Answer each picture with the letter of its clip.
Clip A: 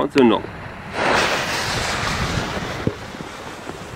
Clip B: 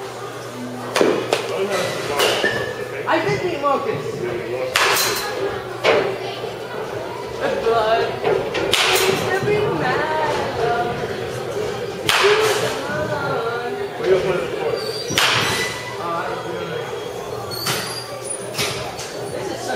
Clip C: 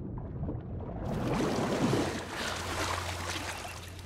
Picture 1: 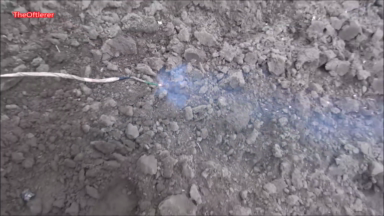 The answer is A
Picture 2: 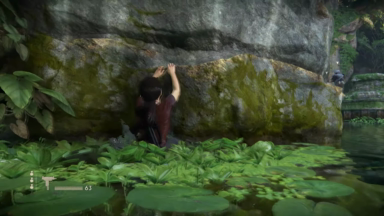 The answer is C